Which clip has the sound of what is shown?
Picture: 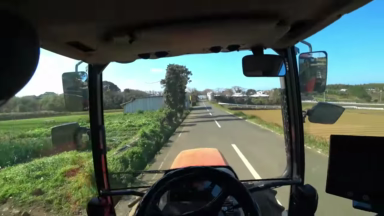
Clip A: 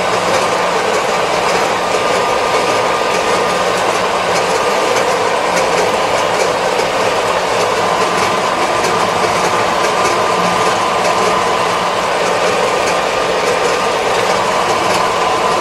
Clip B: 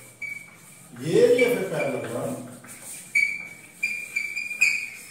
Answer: A